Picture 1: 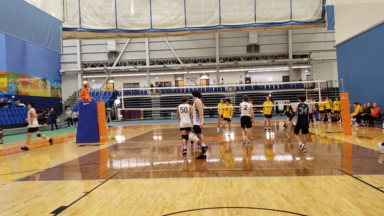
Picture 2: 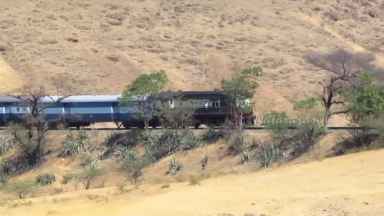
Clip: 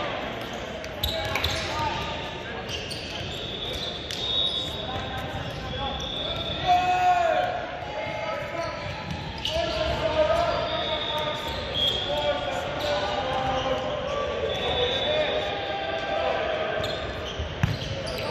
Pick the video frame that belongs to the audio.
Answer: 1